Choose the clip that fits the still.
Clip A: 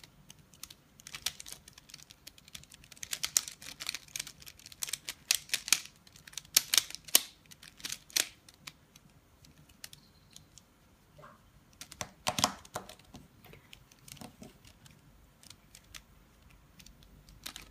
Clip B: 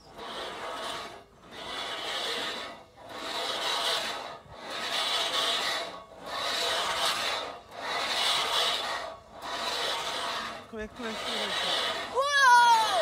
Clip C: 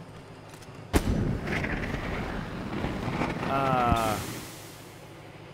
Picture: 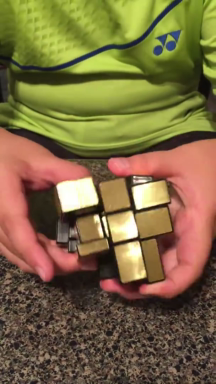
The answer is A